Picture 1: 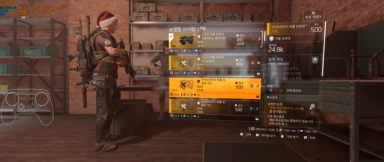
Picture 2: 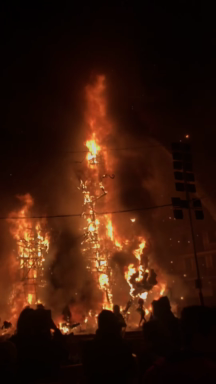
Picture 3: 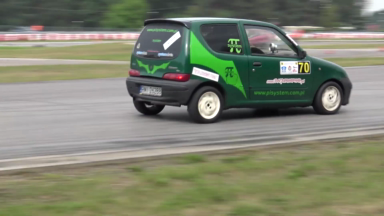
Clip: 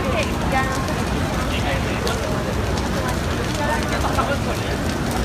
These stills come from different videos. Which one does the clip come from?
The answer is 2